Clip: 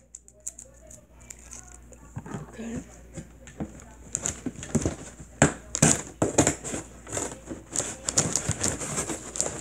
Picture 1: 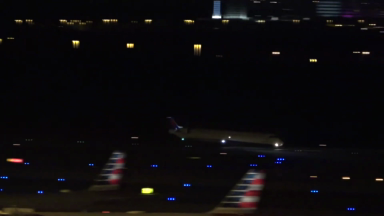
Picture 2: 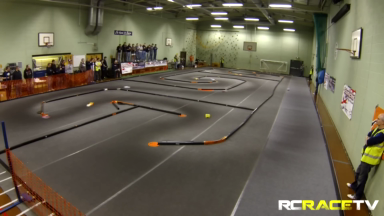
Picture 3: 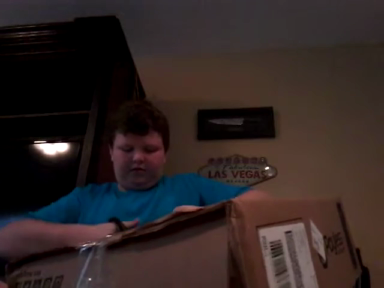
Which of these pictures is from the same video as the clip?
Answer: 3